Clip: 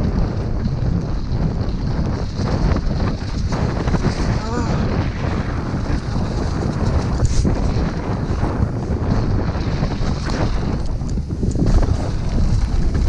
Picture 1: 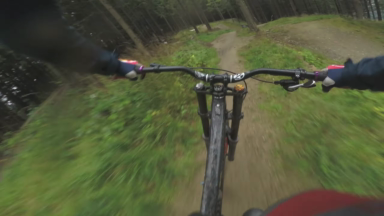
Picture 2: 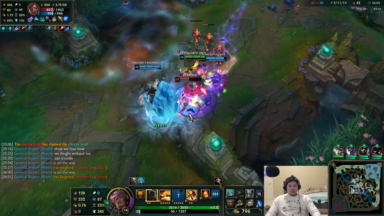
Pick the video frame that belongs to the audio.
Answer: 1